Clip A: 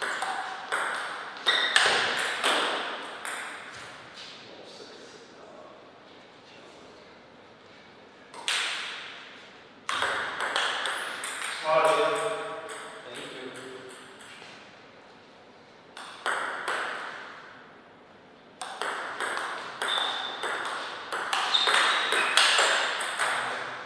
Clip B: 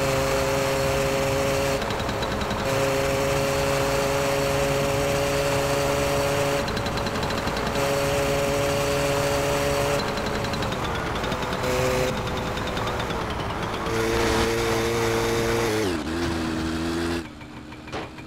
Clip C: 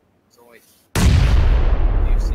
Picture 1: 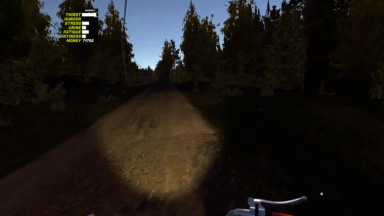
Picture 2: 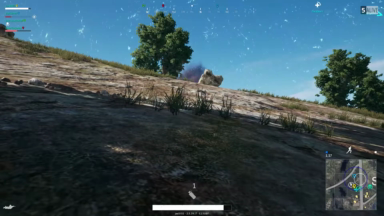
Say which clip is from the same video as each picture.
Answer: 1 B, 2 C